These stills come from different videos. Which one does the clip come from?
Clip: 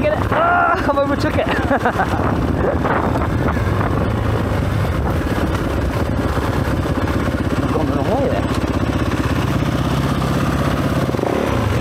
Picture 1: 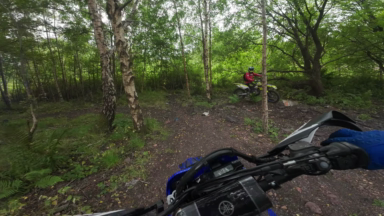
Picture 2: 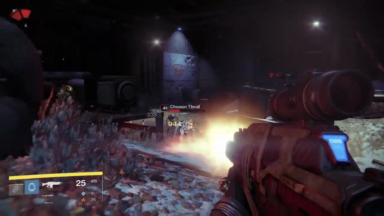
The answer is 1